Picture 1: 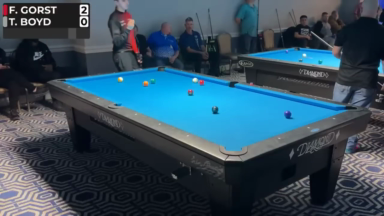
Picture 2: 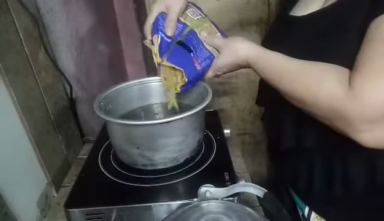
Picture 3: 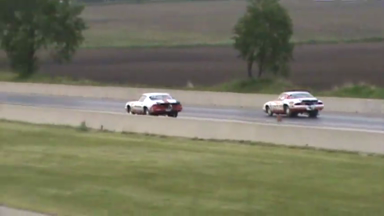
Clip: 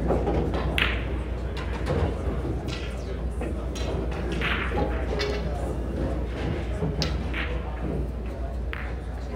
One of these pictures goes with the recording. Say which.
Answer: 1